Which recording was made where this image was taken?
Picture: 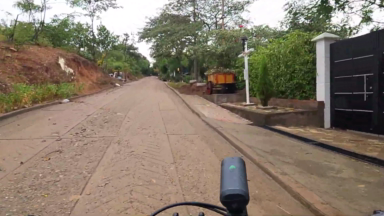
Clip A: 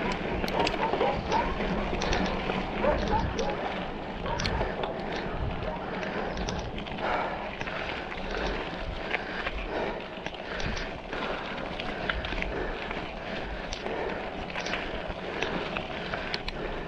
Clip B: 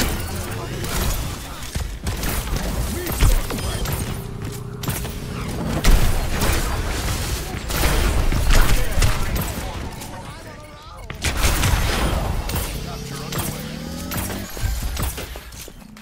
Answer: A